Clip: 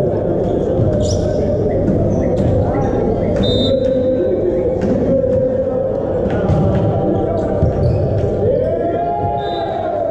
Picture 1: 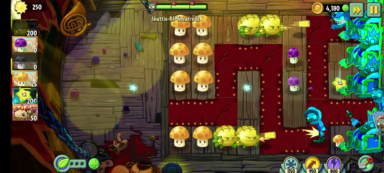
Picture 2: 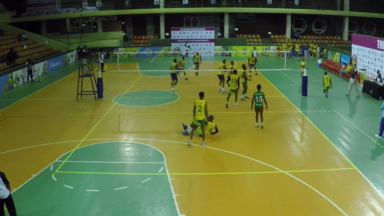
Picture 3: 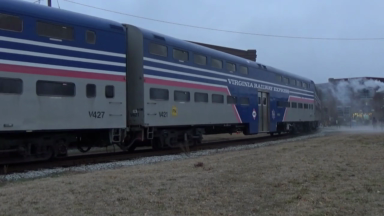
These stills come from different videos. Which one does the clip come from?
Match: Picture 2